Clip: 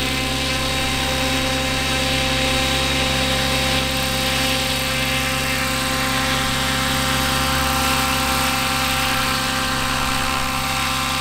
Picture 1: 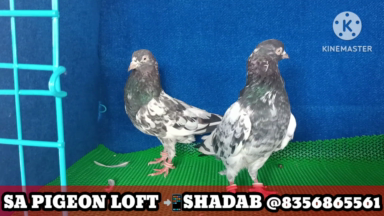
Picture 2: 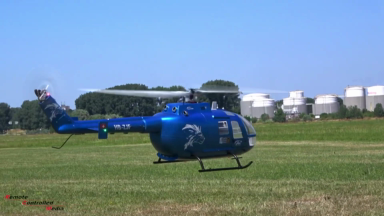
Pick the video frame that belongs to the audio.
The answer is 2